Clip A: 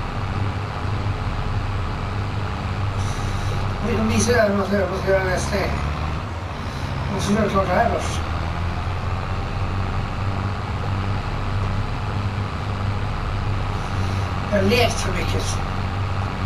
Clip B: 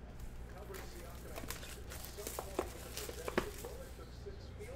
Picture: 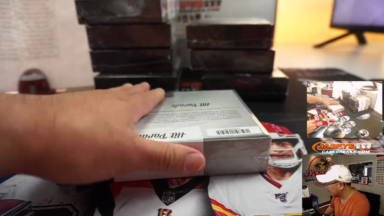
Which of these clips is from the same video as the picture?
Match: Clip B